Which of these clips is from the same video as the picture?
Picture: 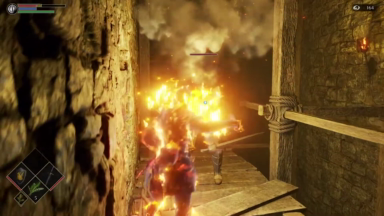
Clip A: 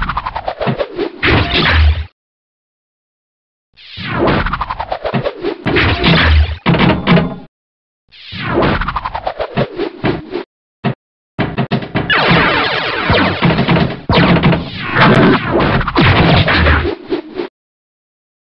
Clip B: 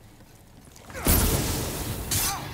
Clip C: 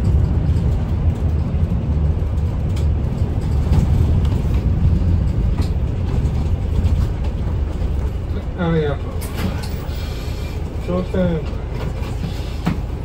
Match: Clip B